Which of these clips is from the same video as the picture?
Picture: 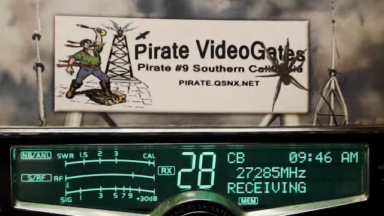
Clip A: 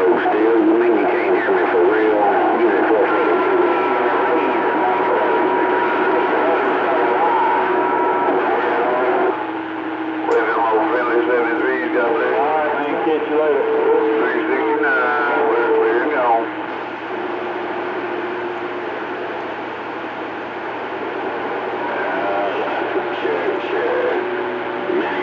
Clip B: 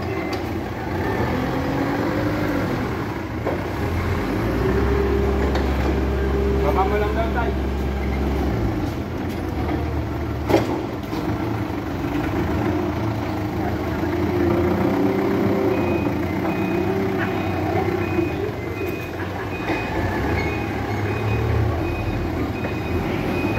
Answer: A